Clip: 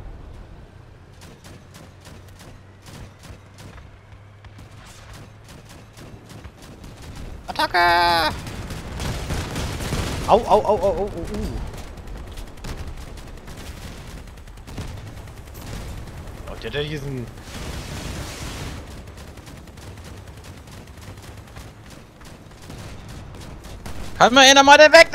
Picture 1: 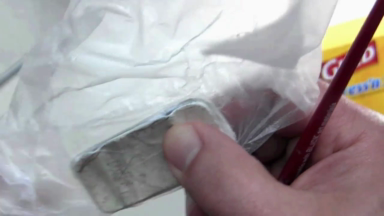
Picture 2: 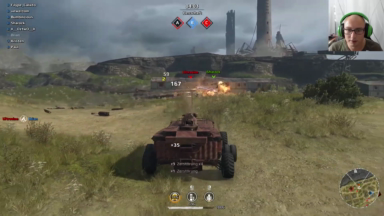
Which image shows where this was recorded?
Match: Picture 2